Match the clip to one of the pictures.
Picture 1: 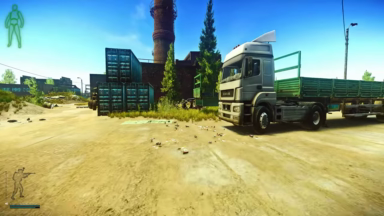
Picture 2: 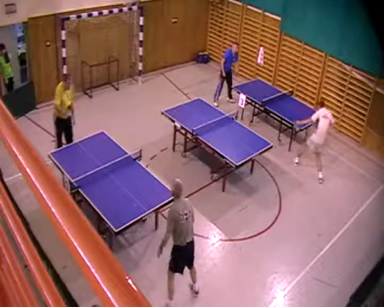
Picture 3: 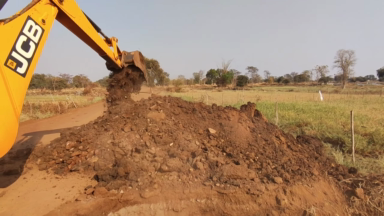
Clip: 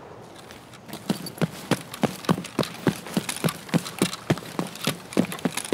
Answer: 1